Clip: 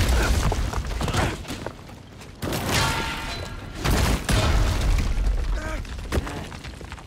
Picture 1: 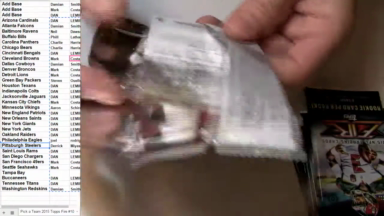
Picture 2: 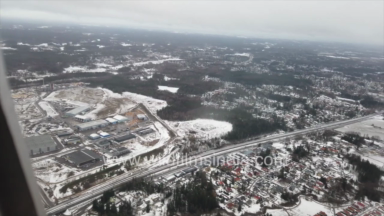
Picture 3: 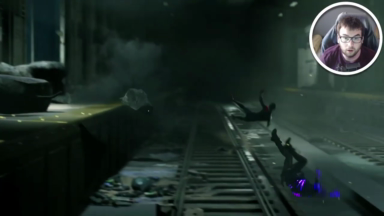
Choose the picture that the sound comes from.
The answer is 3